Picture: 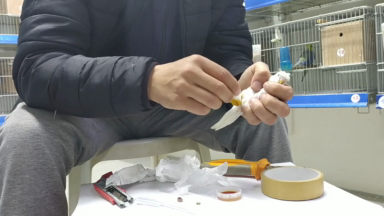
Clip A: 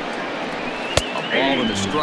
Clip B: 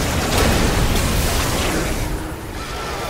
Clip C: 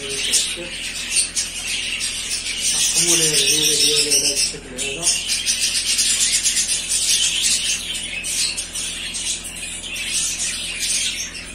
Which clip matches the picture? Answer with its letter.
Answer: C